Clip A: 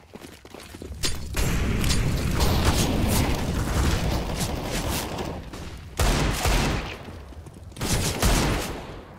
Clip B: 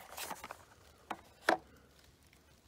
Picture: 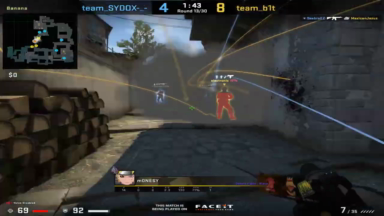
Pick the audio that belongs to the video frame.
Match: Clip A